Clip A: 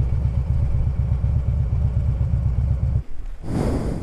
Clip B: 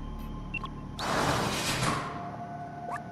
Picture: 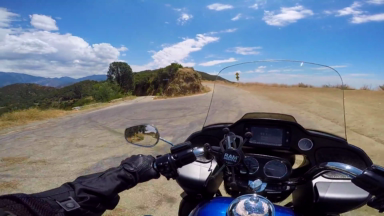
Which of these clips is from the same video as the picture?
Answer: A